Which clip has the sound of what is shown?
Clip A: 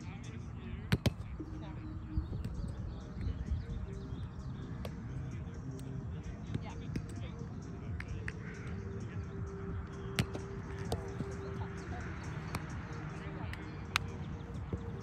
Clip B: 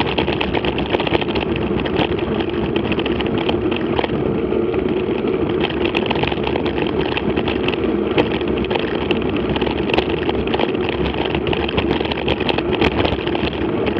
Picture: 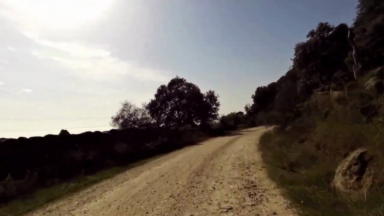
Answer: B